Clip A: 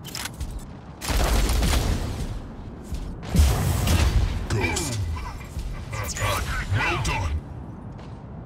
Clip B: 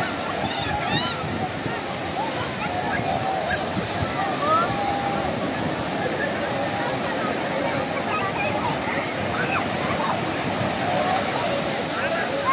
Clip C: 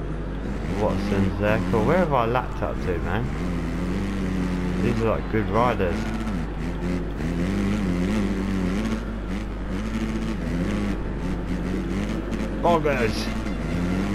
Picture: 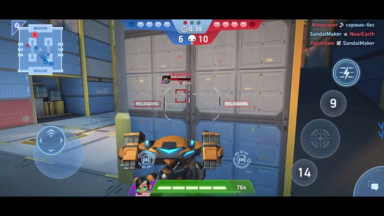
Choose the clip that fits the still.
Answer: A